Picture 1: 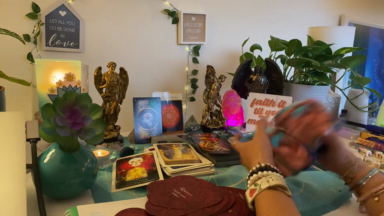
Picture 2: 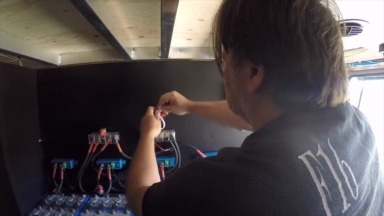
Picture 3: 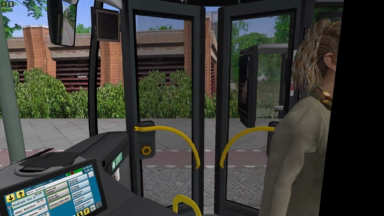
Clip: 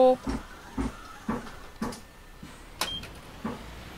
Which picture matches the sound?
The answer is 3